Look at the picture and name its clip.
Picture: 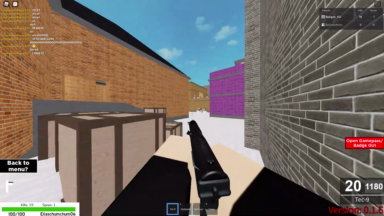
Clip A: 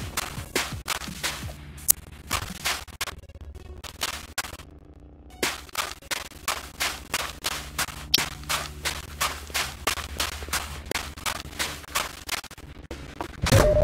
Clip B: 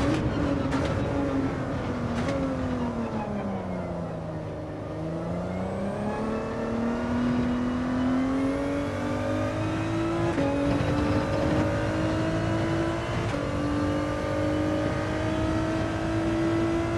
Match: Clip A